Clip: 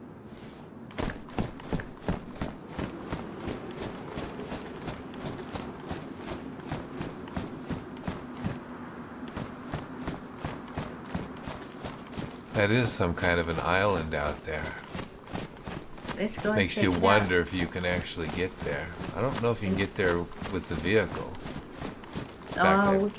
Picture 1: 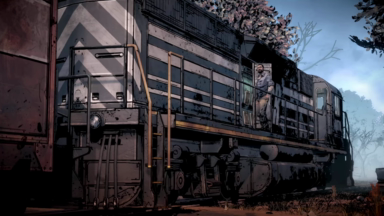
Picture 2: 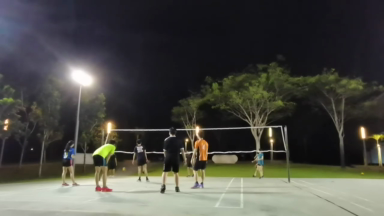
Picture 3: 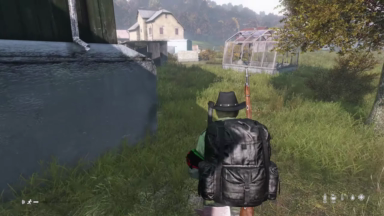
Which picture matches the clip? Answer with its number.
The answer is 3